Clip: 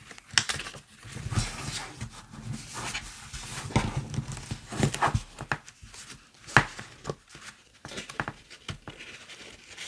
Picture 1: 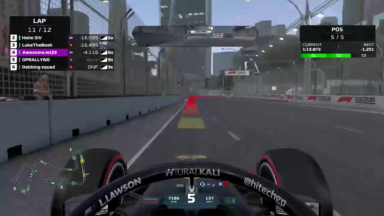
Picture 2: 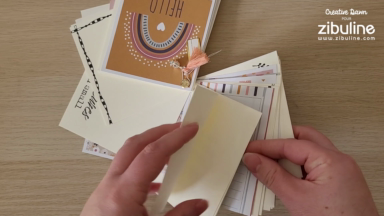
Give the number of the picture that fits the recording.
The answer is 2